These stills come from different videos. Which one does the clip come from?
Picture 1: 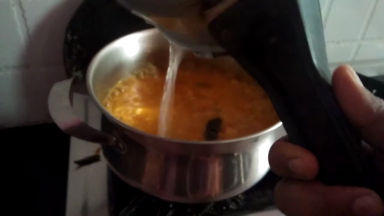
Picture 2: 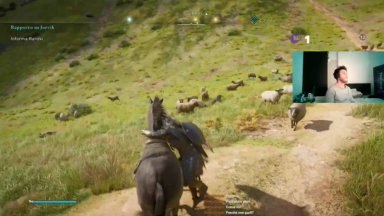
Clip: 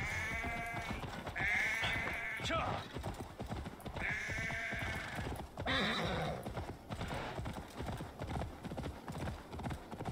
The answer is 2